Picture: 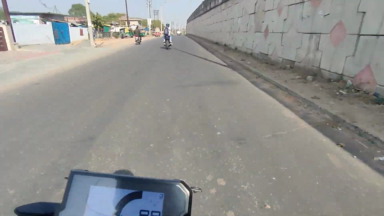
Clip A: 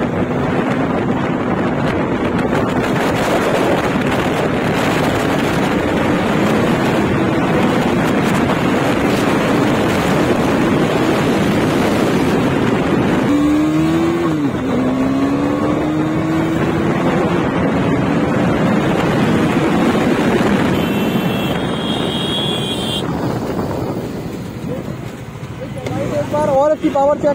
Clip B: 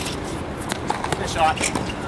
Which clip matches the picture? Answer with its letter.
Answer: A